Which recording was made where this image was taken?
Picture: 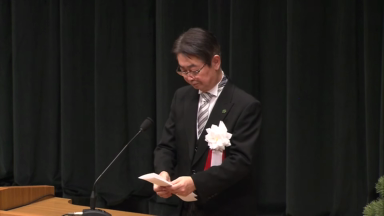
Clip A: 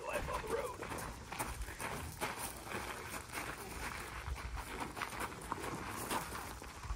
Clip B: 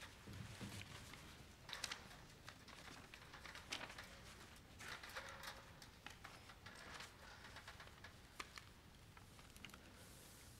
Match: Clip B